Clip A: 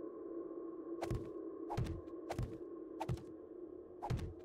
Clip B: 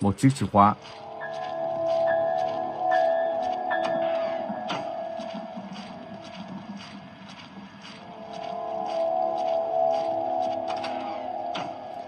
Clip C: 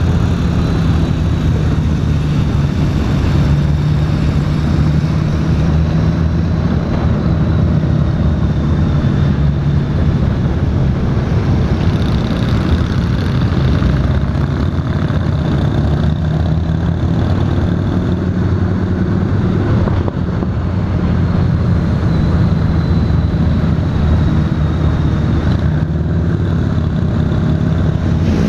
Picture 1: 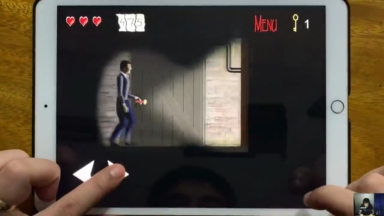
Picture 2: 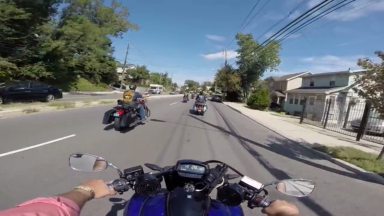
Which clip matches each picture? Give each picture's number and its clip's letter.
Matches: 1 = B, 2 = C